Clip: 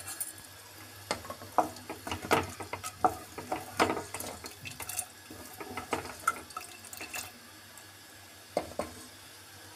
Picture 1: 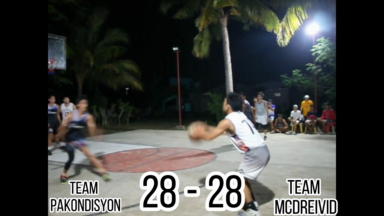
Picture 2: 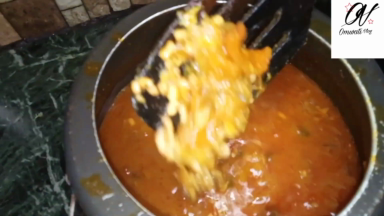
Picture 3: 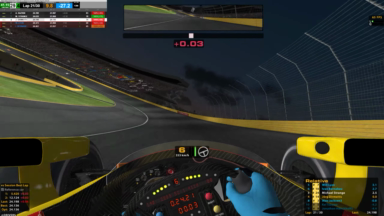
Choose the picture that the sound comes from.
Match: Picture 2